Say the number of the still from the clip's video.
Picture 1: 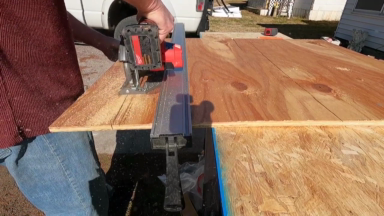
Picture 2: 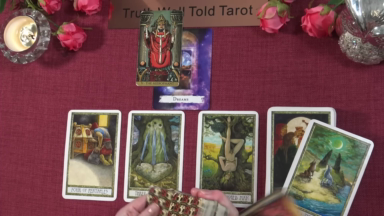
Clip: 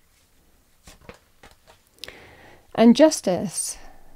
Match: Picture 2